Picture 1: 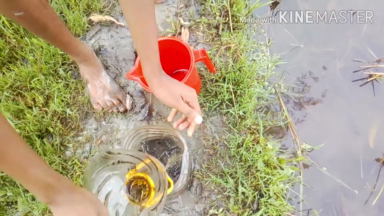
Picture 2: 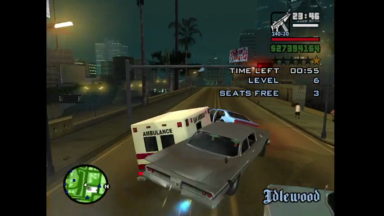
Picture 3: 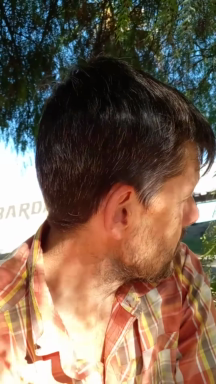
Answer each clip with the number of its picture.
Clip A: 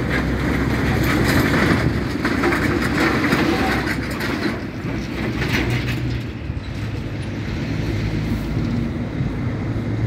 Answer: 3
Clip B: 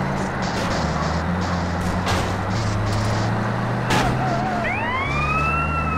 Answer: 2